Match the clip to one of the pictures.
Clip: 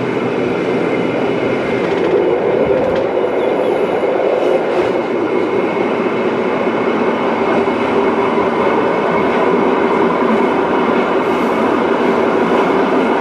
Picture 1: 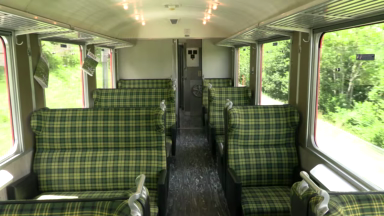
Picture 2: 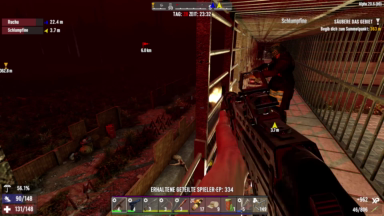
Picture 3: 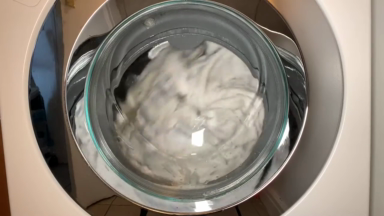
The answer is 1